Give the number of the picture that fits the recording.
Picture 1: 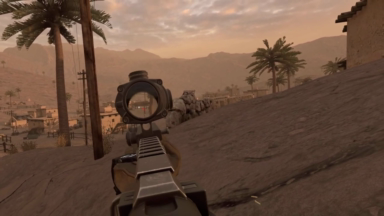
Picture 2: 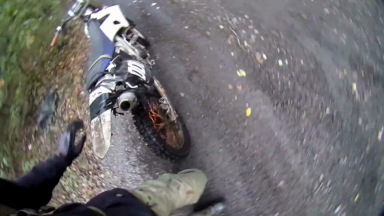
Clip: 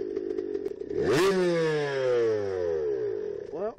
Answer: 2